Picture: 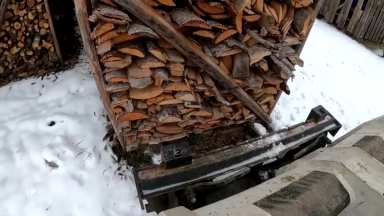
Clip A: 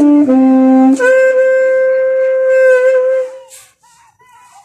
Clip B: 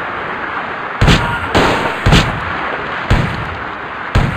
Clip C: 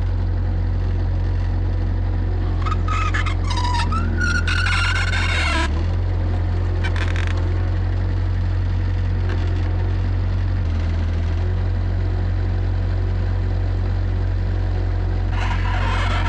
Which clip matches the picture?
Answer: C